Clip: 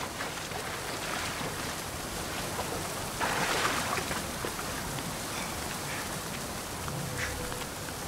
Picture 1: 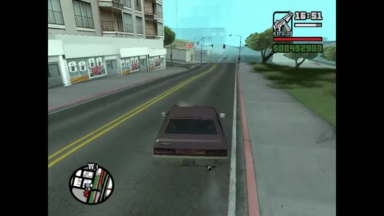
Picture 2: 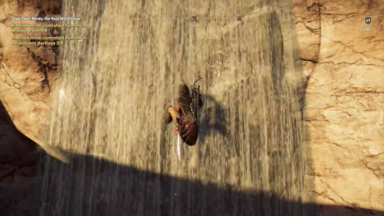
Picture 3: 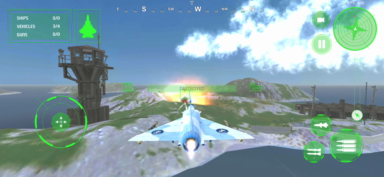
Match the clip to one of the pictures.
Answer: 2